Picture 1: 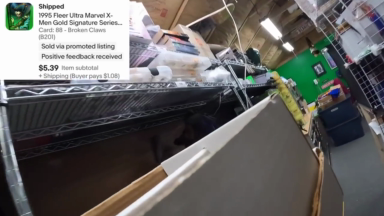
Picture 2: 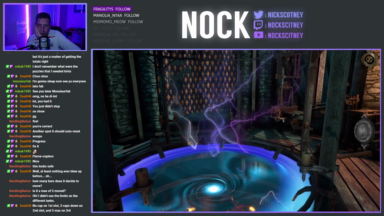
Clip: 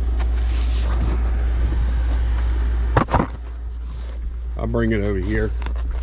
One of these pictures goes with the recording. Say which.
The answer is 1